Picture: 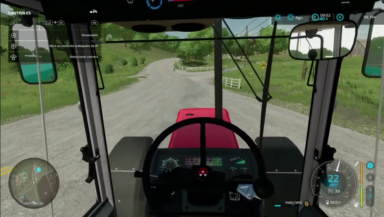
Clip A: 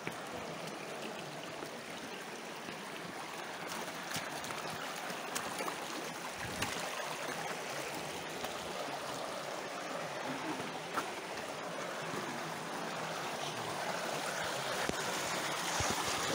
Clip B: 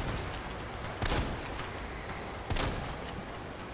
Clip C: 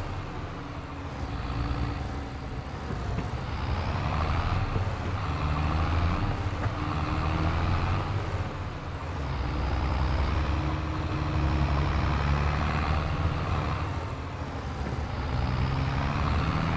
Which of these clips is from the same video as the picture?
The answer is C